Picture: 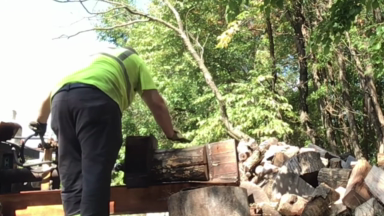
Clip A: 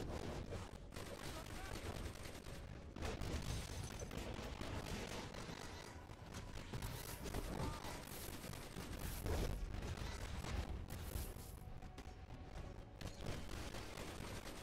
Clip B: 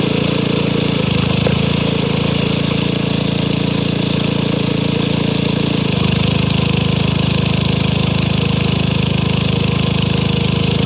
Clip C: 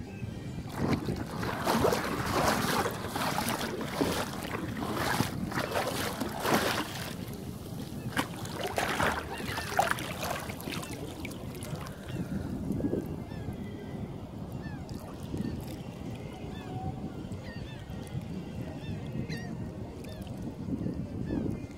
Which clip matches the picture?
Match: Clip B